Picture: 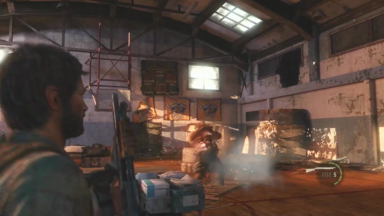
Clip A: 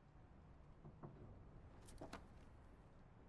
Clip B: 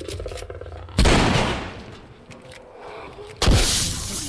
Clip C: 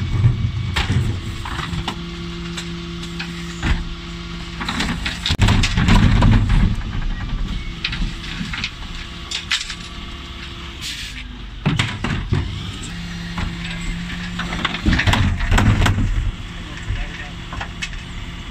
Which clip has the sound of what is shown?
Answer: B